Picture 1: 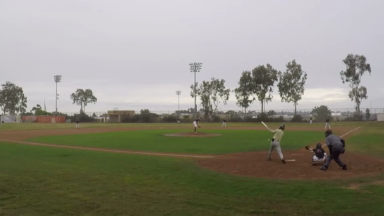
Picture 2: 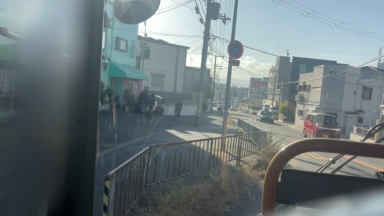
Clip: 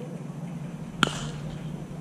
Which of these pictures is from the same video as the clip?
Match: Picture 1